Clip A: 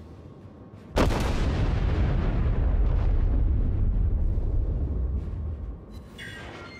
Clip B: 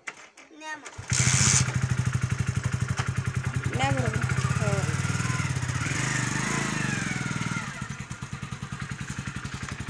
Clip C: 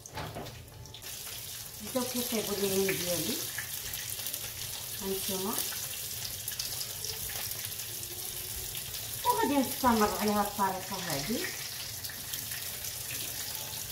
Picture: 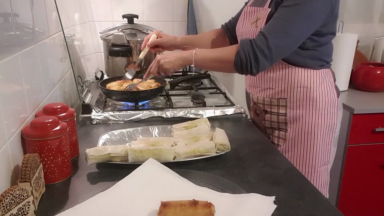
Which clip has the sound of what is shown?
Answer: C